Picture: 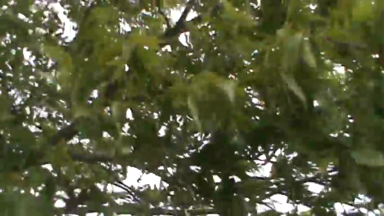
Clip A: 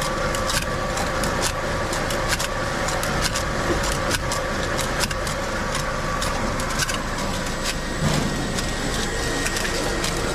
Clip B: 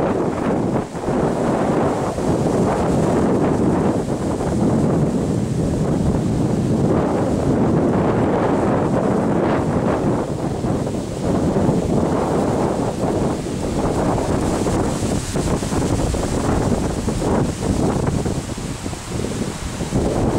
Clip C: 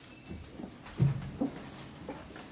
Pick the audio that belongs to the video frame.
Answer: B